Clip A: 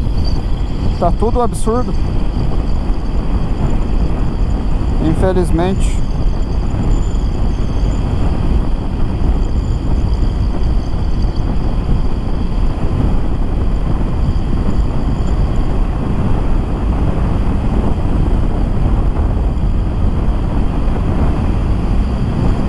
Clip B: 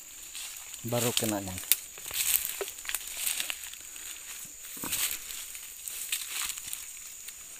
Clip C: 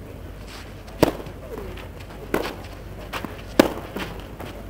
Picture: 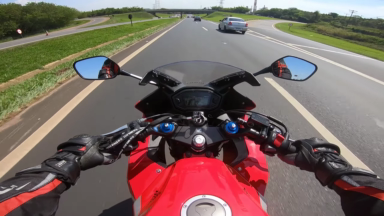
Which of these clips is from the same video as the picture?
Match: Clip A